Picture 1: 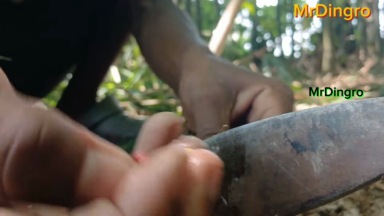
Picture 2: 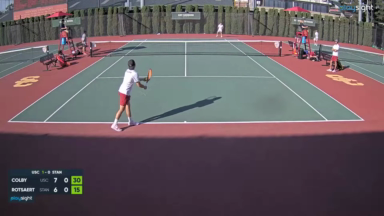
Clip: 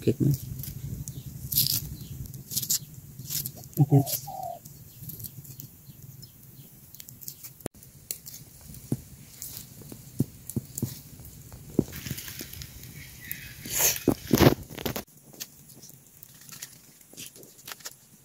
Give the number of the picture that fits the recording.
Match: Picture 1